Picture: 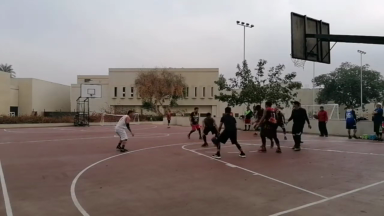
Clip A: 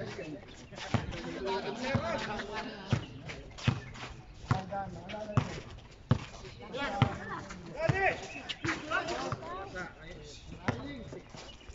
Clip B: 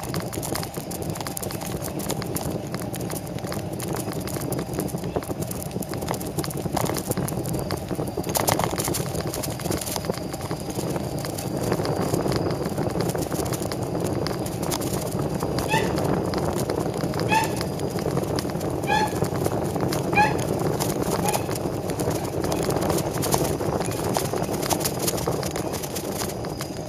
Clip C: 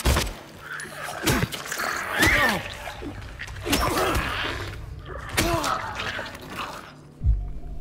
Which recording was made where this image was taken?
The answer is A